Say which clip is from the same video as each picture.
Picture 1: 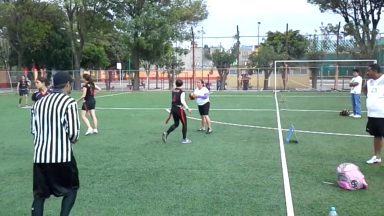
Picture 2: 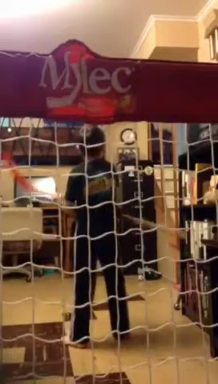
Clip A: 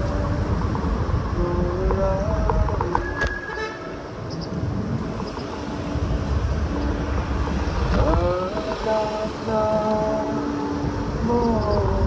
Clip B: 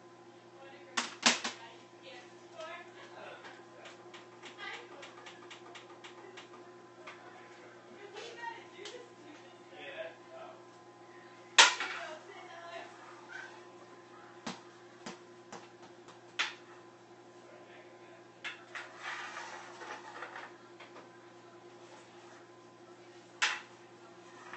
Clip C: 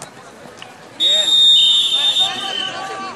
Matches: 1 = C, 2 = B